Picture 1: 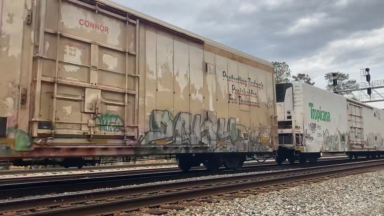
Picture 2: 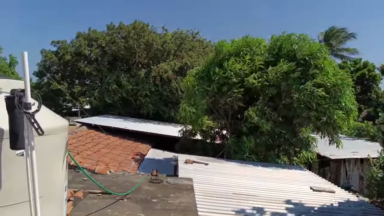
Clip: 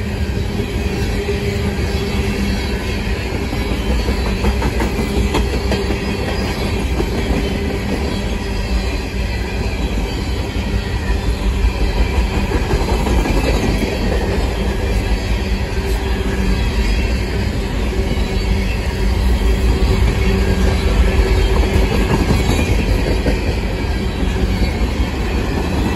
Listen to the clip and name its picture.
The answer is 1